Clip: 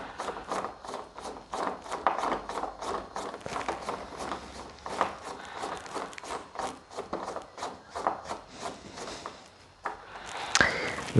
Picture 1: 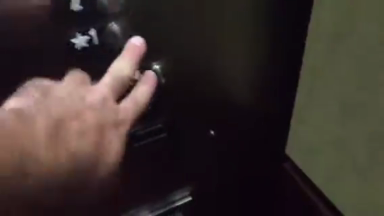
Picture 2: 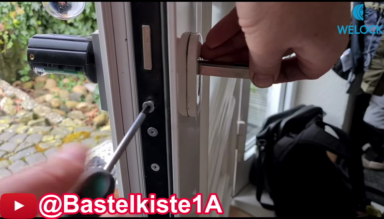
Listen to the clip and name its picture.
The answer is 2